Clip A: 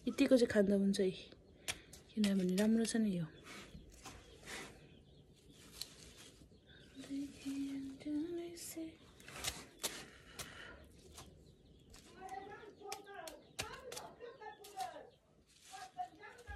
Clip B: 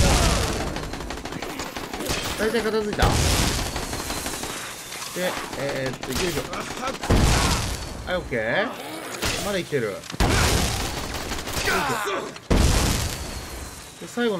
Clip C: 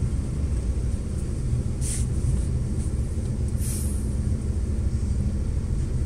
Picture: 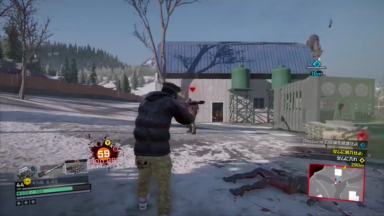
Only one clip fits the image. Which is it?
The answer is B